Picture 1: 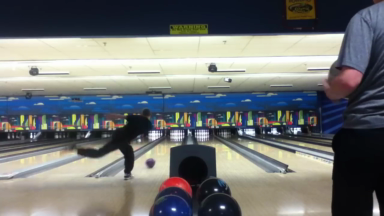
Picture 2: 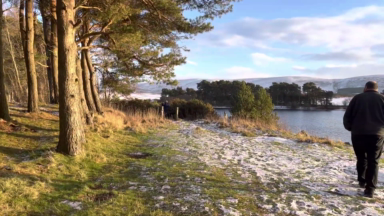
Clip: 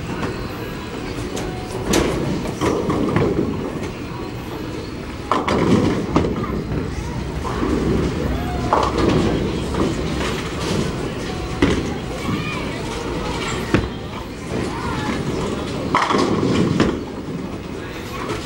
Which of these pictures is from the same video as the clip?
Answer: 1